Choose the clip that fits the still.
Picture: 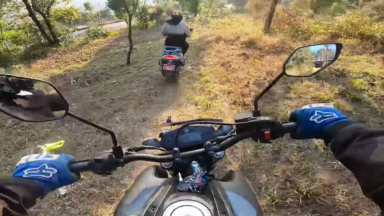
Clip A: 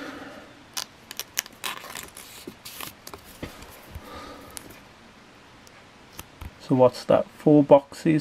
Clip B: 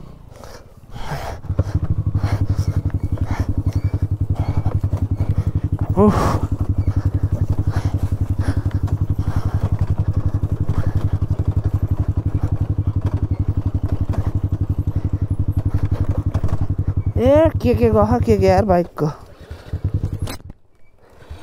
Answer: B